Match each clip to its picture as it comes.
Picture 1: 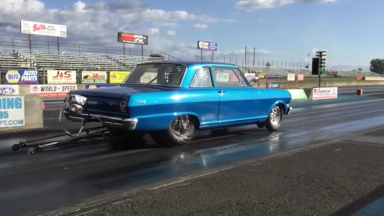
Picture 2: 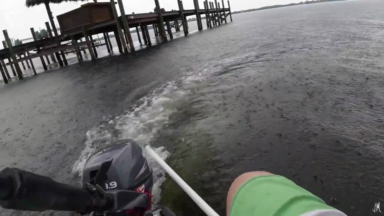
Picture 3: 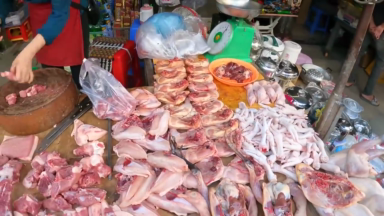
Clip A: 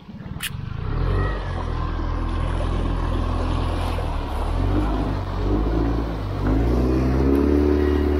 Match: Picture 2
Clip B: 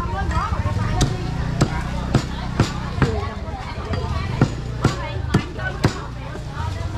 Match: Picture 3